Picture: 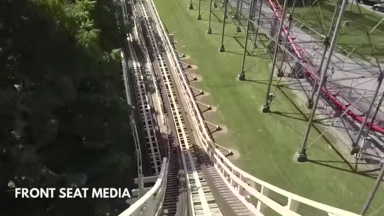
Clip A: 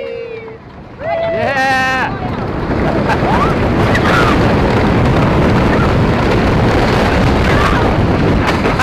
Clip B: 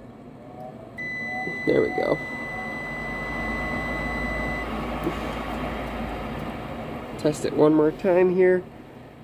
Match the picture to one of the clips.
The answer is A